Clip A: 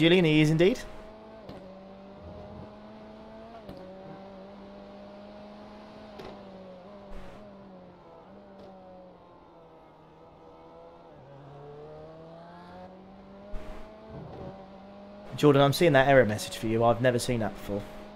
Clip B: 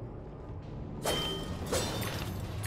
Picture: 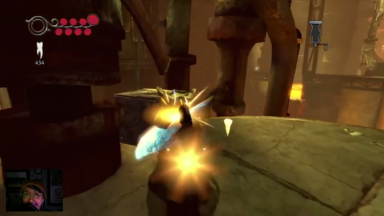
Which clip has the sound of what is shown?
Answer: B